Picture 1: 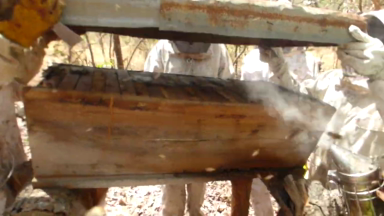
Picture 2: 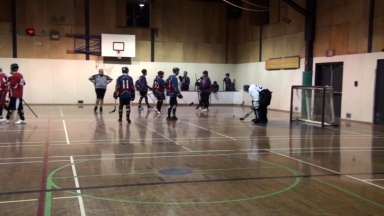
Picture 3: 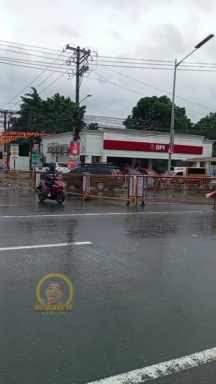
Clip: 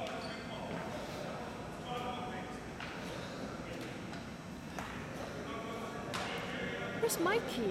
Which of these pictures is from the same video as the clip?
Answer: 2